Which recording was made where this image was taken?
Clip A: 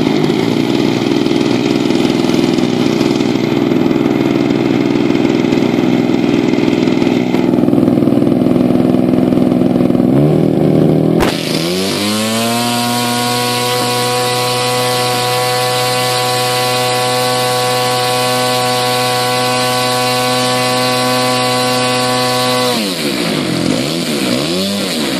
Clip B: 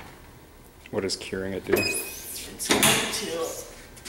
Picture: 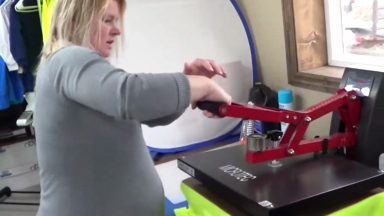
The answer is B